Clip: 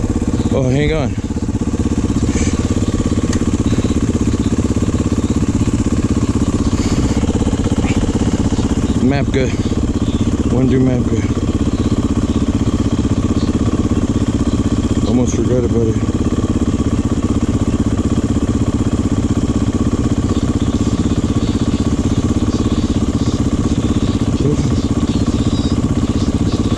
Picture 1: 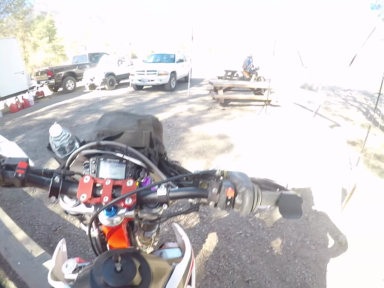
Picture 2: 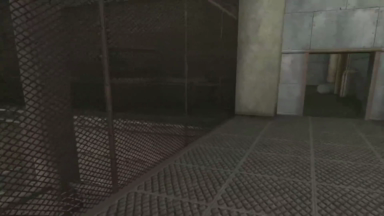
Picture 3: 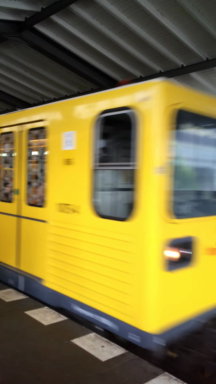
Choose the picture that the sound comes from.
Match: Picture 1